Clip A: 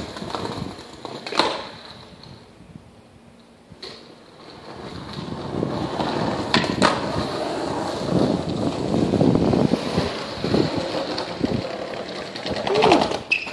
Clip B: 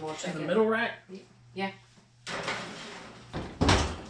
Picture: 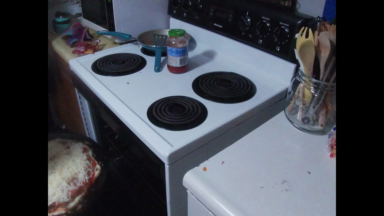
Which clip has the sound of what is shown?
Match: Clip B